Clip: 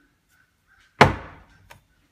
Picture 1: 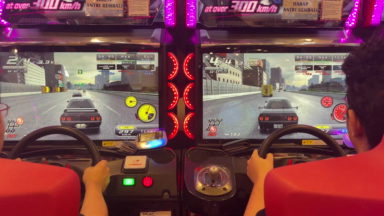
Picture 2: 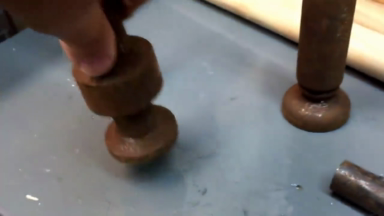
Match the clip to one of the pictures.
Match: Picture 2